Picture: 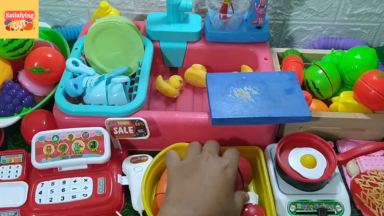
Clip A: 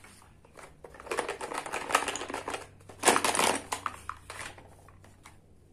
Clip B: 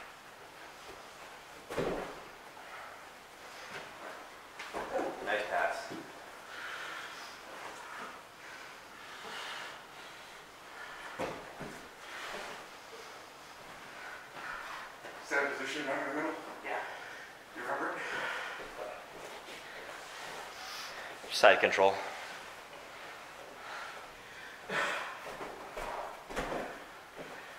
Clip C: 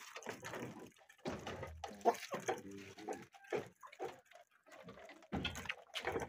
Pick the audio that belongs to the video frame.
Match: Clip A